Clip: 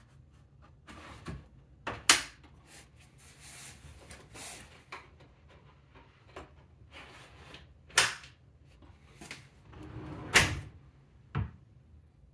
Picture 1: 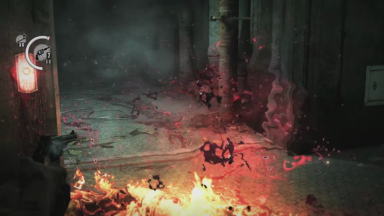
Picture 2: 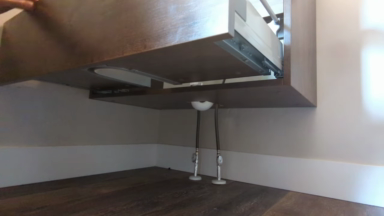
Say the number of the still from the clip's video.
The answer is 2